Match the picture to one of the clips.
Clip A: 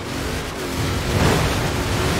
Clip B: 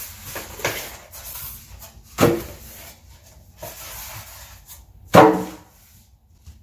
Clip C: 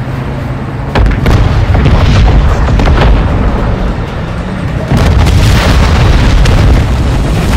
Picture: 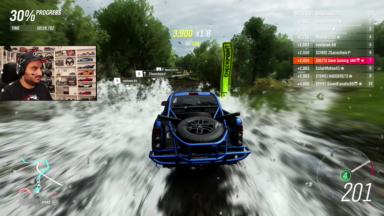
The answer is A